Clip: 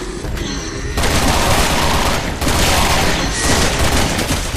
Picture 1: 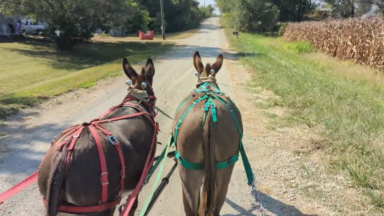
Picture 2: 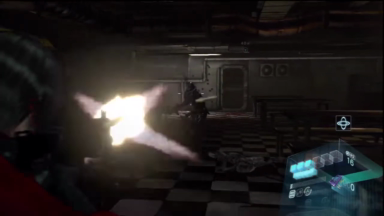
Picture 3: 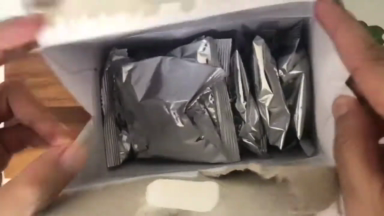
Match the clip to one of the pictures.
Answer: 2